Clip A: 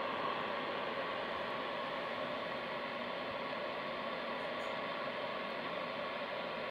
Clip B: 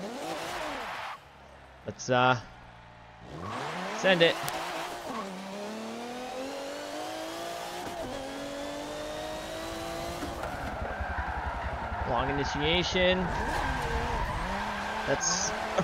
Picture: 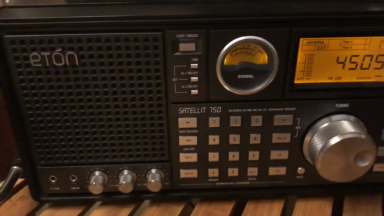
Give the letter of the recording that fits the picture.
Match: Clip A